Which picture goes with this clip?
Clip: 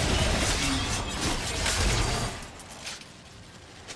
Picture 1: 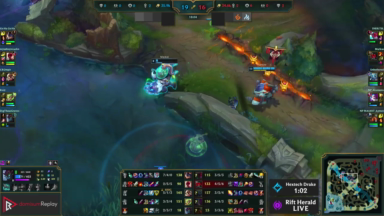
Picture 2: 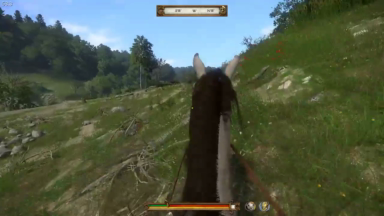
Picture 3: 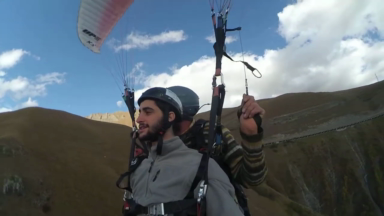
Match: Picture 1